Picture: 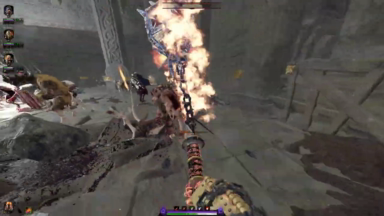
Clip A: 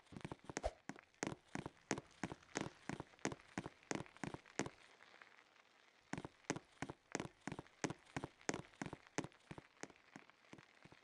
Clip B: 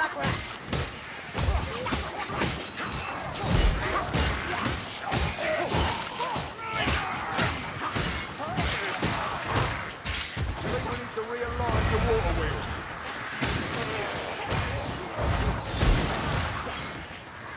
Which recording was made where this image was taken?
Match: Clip B